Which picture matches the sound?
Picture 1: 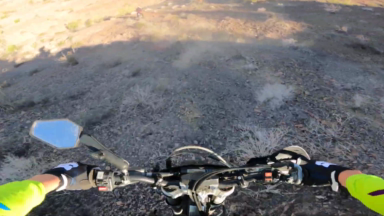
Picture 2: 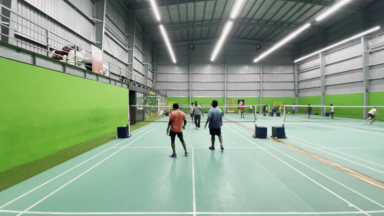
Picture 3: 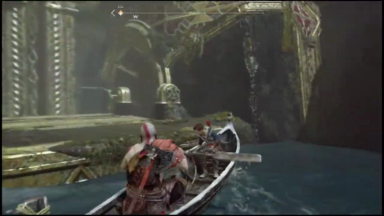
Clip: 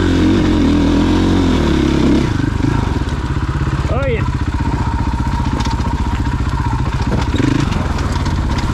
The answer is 1